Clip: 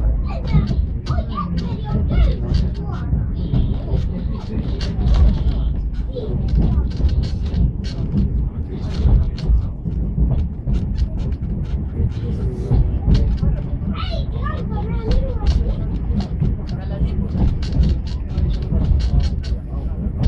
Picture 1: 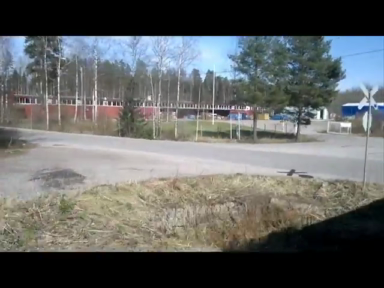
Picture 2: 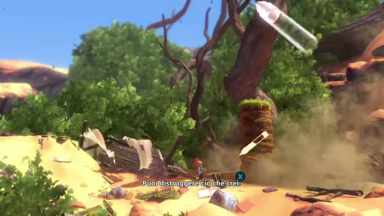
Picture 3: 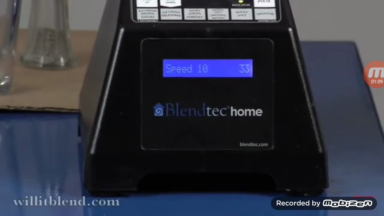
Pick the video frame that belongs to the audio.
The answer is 1